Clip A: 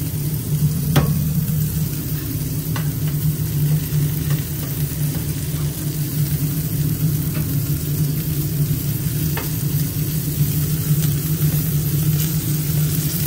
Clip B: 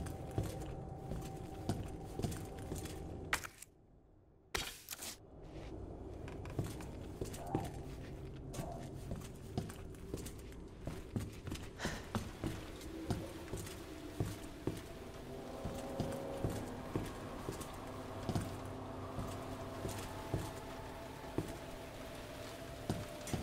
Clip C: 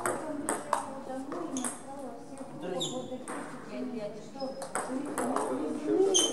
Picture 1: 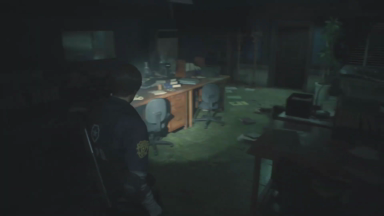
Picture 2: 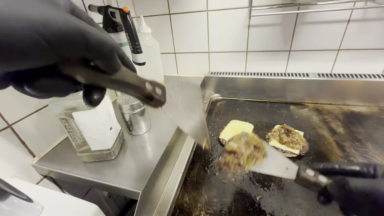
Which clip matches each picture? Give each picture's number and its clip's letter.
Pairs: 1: B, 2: A